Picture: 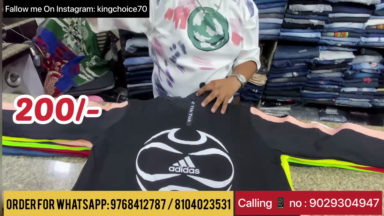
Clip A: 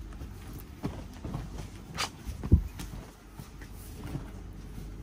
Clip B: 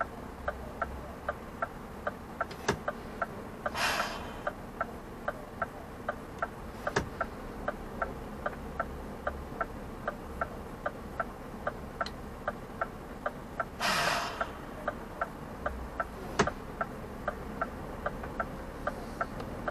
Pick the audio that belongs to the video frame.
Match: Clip A